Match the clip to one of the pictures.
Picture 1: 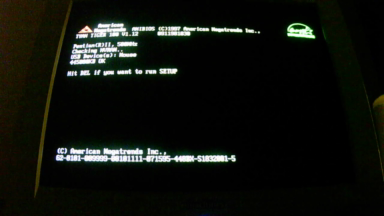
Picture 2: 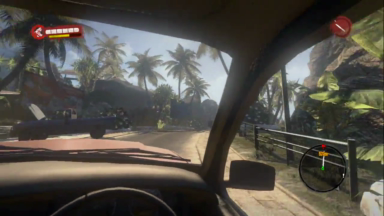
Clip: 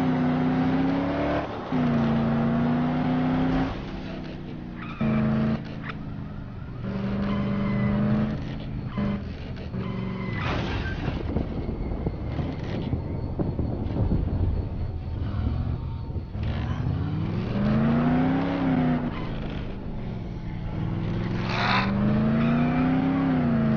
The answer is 2